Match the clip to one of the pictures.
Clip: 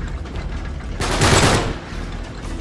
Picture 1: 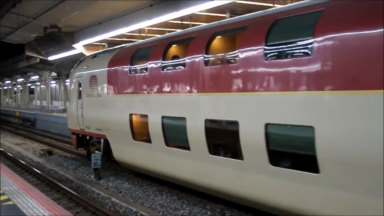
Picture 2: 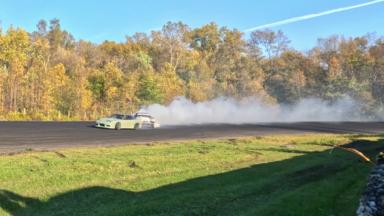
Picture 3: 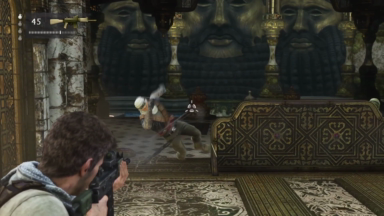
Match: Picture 3